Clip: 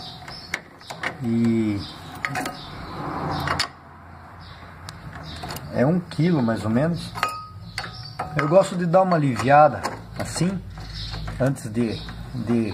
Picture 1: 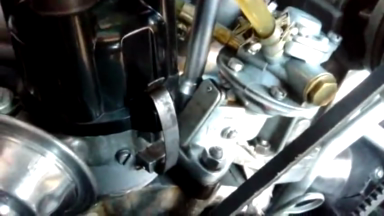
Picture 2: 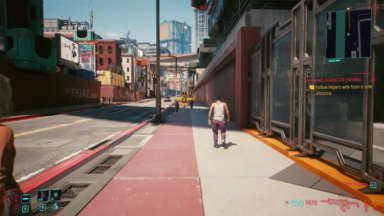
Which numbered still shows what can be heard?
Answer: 1